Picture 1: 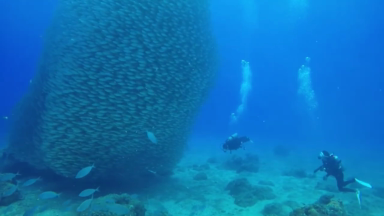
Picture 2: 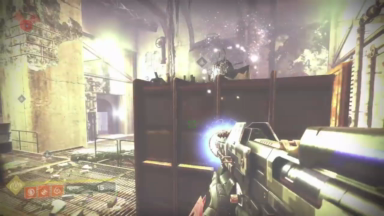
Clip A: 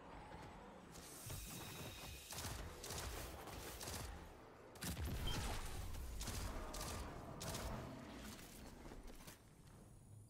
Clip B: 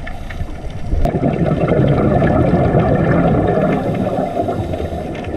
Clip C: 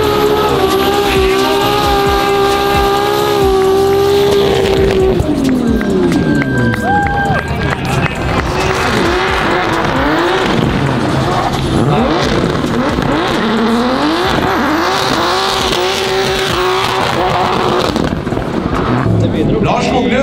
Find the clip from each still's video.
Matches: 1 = B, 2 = A